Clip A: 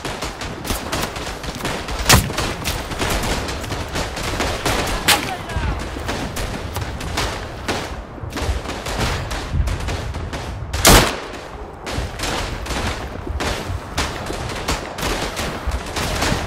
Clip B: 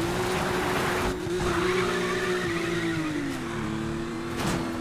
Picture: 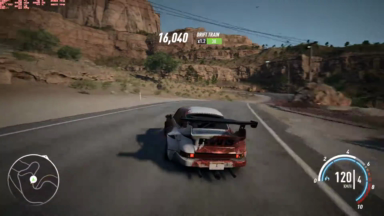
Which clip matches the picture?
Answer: B